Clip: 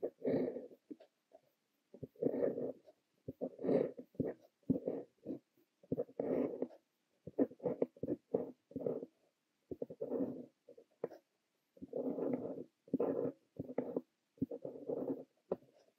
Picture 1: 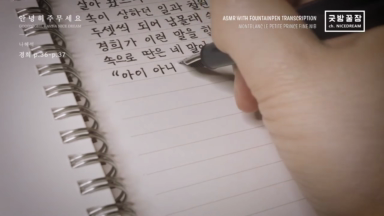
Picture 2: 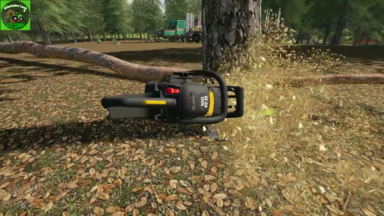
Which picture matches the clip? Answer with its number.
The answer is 1